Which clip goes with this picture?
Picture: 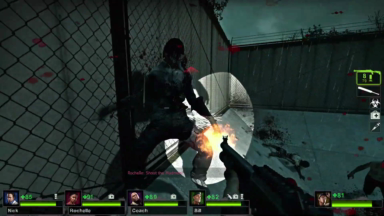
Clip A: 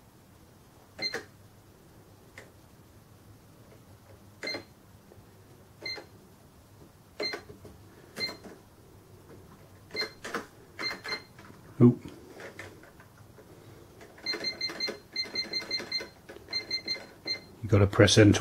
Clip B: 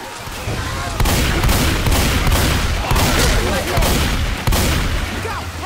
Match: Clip B